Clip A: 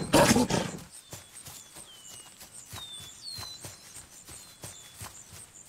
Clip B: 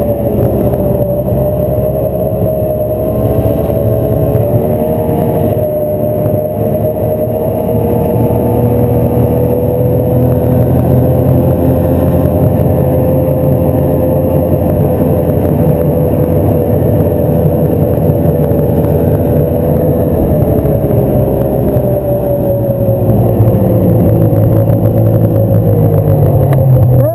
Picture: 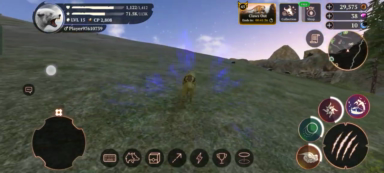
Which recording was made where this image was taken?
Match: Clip A